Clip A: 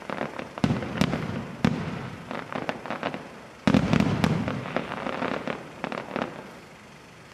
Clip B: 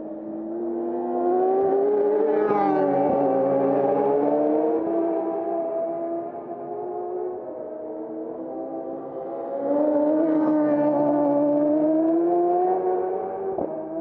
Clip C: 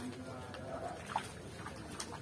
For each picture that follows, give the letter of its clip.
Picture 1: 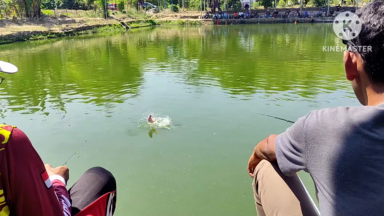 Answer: C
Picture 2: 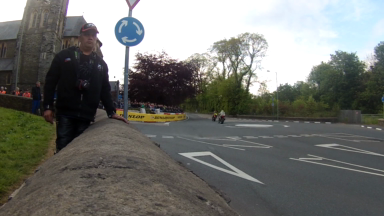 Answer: B